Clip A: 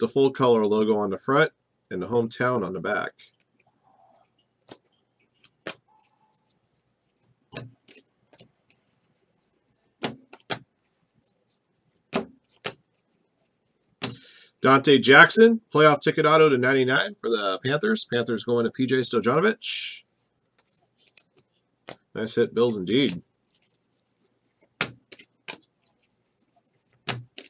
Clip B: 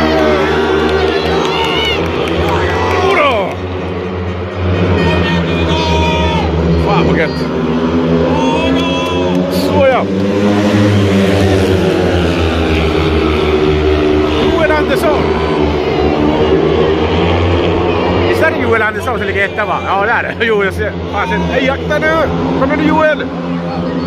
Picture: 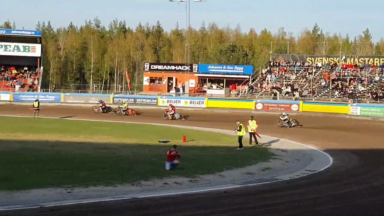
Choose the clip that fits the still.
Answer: B